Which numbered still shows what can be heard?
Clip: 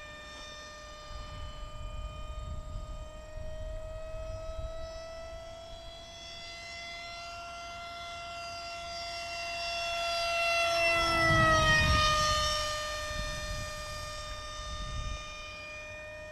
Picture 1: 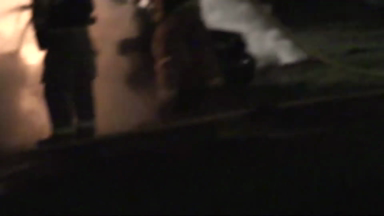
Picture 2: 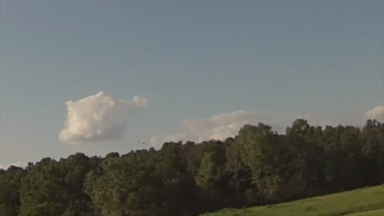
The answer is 2